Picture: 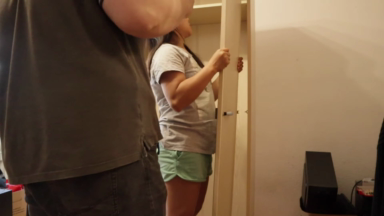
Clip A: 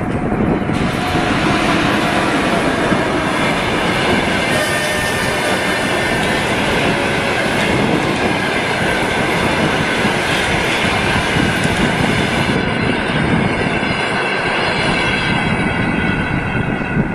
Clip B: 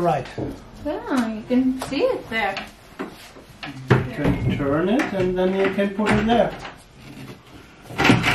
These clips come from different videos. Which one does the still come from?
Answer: B